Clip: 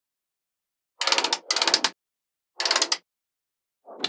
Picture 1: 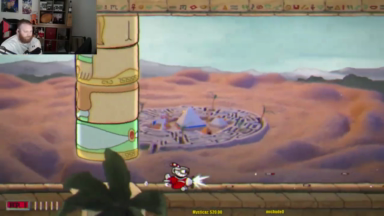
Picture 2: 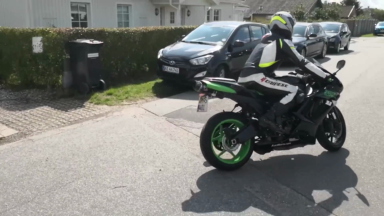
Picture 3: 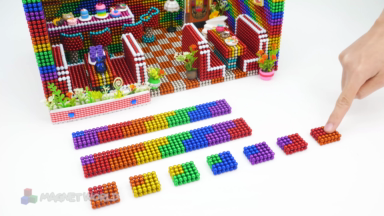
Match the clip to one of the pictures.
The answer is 3